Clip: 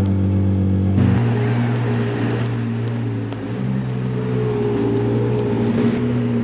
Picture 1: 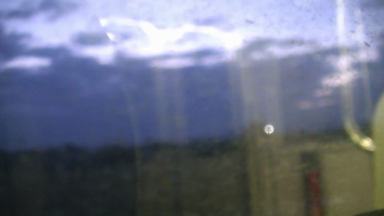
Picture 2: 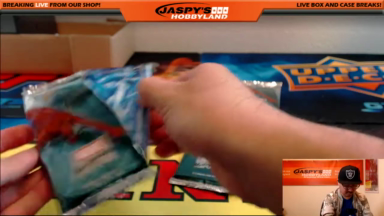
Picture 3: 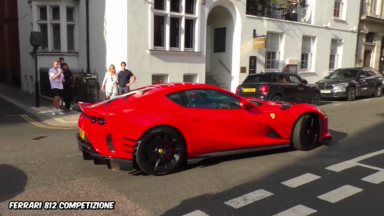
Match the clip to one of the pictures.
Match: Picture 3